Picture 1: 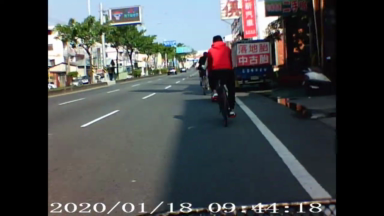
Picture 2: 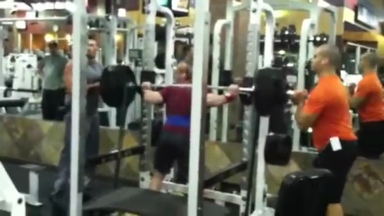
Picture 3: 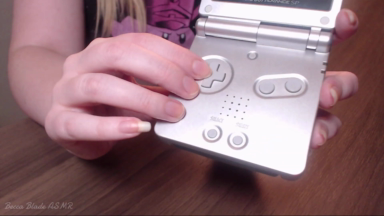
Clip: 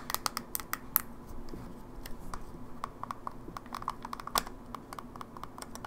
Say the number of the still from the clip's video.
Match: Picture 3